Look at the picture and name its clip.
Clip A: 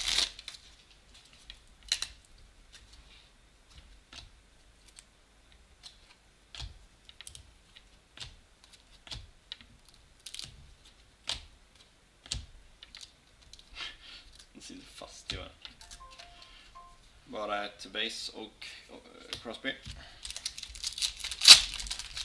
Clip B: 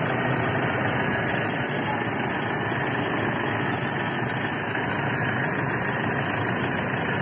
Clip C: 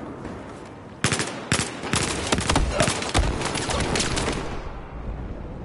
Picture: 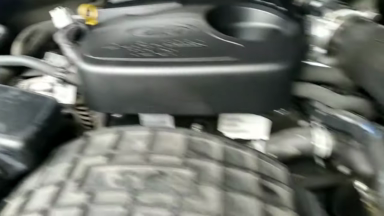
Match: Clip B